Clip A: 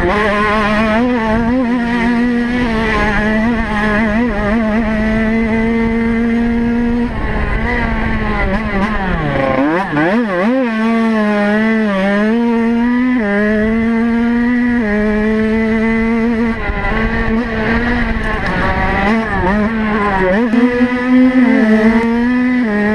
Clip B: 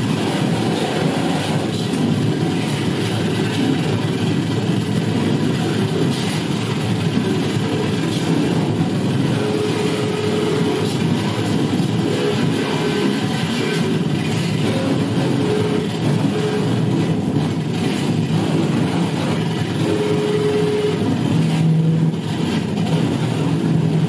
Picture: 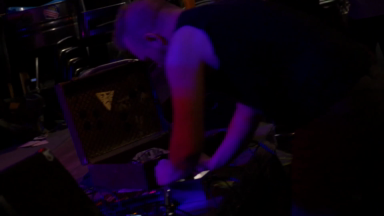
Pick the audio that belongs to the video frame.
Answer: B